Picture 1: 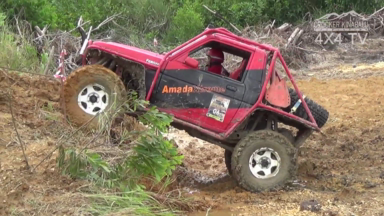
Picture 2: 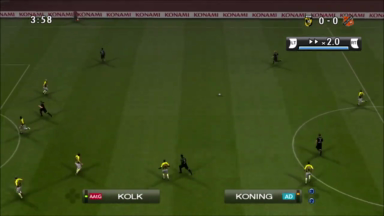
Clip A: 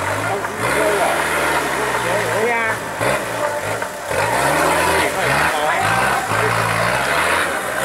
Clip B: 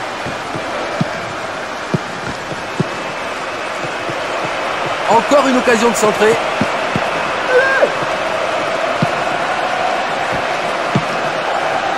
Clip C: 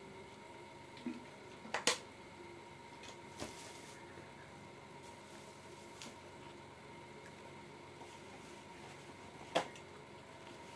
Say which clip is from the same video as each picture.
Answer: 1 A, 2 B